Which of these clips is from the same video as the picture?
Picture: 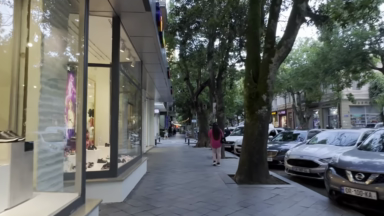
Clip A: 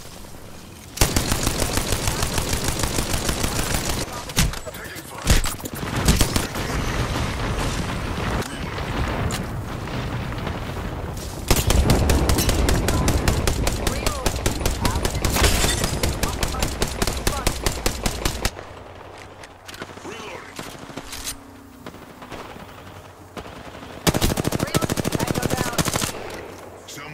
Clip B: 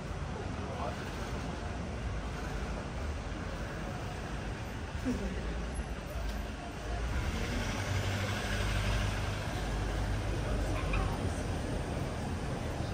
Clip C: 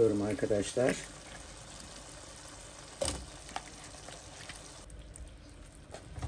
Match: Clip B